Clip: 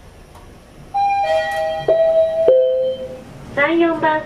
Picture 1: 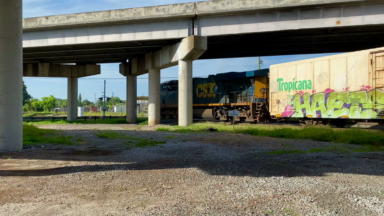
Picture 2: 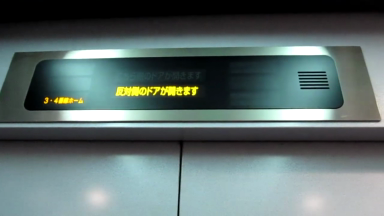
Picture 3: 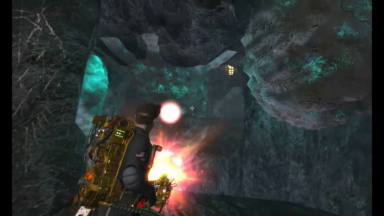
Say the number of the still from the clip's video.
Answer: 2